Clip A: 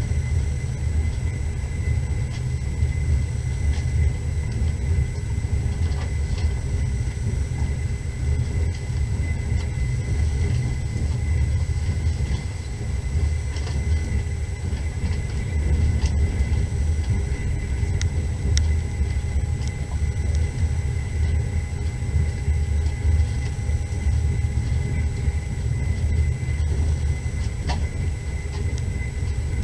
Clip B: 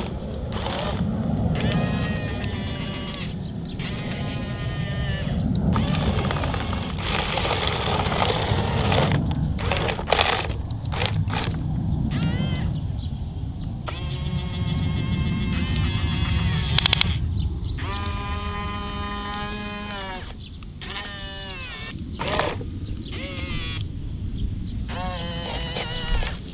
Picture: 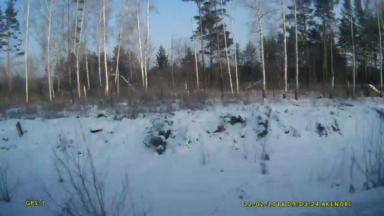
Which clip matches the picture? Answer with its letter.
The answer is A